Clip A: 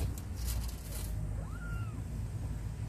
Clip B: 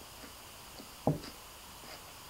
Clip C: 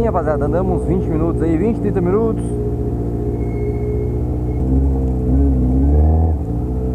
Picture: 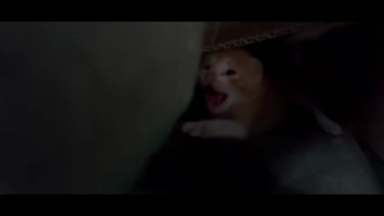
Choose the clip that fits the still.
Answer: A